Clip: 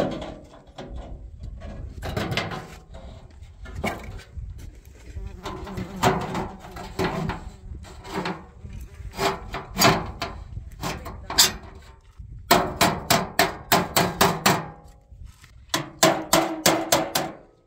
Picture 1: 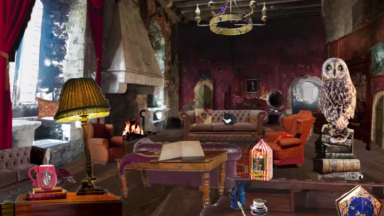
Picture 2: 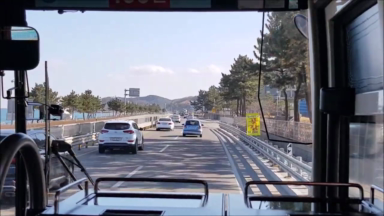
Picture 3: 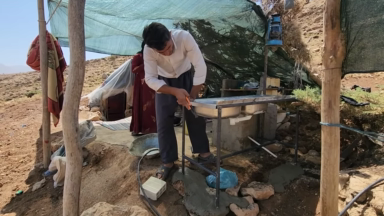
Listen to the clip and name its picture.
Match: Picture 3